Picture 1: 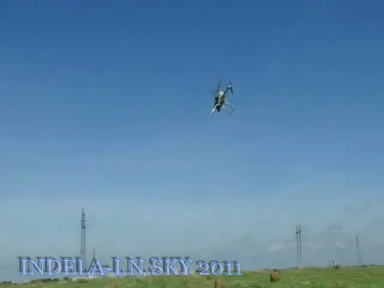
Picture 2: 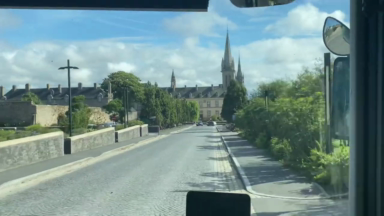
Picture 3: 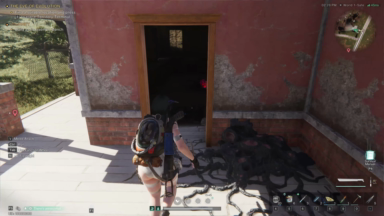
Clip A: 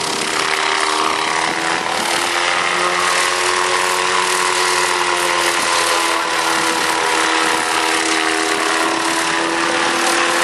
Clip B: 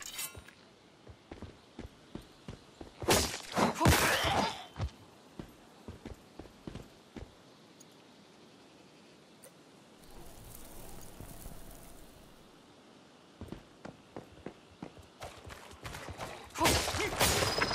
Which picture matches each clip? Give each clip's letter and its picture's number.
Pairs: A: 1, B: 3